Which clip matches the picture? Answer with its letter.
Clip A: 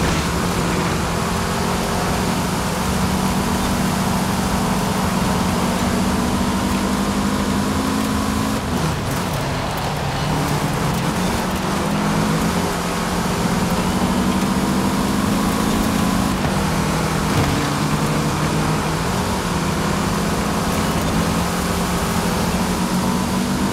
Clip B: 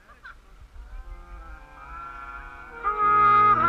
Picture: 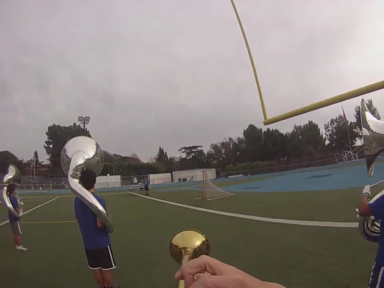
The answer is B